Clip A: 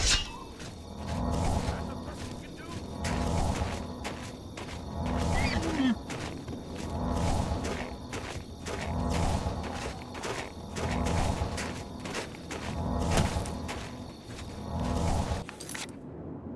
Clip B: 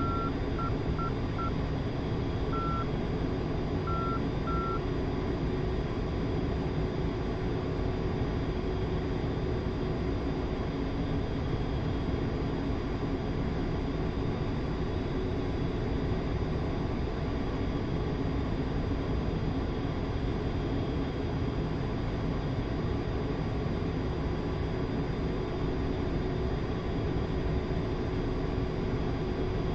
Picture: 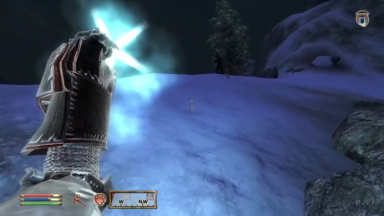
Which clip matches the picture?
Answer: A